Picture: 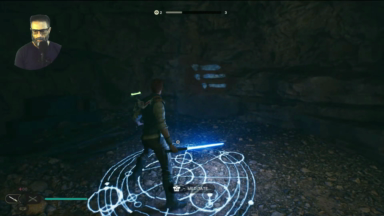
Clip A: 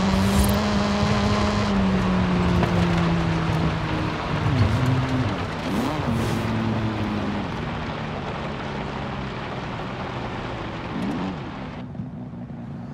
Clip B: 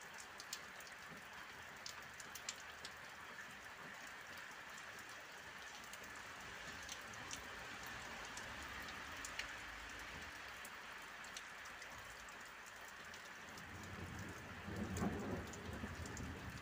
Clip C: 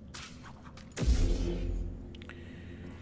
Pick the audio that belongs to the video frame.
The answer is C